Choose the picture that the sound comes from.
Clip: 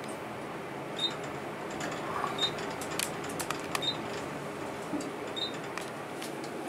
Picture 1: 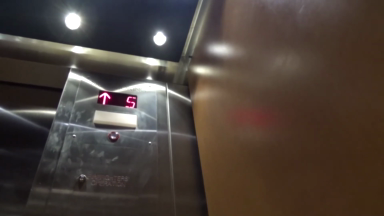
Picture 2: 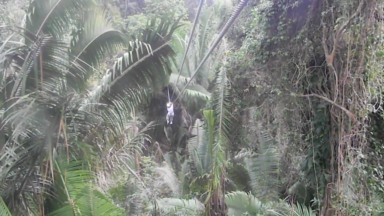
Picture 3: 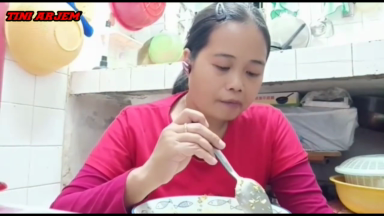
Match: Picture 1